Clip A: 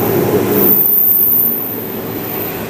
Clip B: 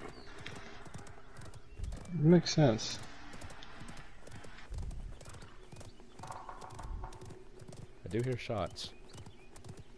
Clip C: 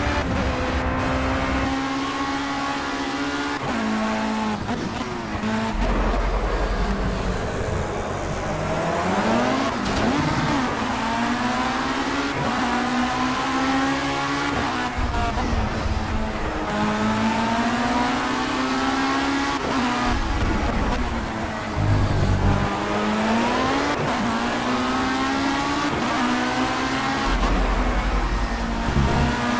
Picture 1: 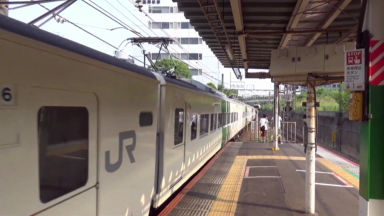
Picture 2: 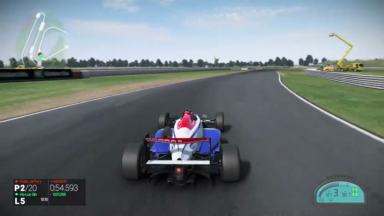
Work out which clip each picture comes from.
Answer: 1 A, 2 C